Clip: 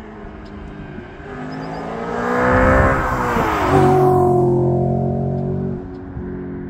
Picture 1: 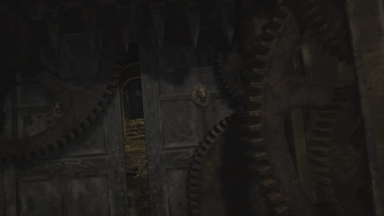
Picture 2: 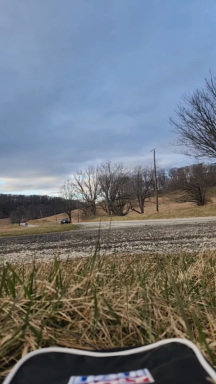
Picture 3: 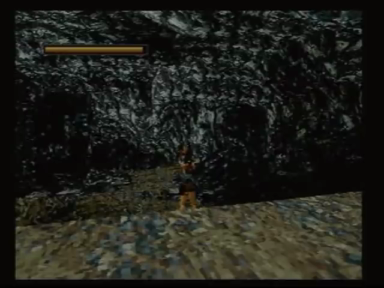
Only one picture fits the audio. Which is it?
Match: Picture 2